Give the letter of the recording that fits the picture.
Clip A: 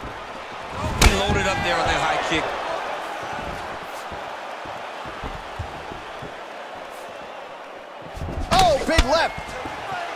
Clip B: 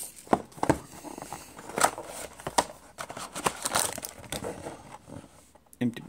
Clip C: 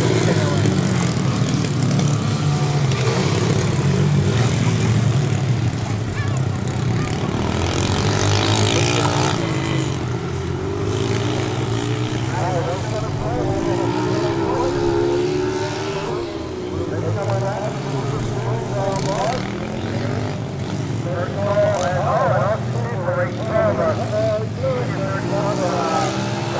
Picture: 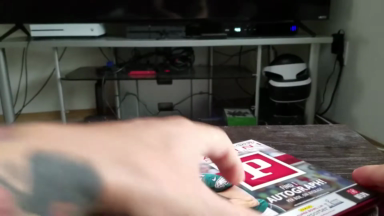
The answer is B